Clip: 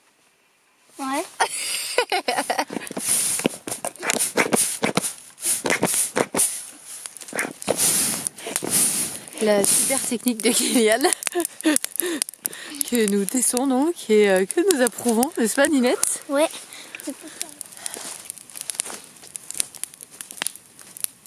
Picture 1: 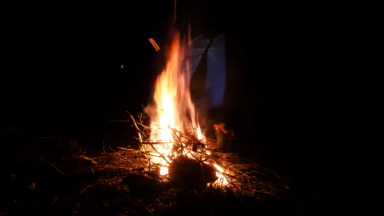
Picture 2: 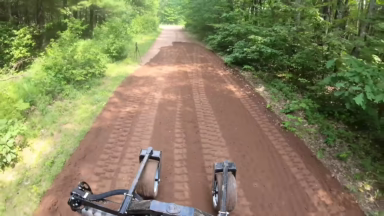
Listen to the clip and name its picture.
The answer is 1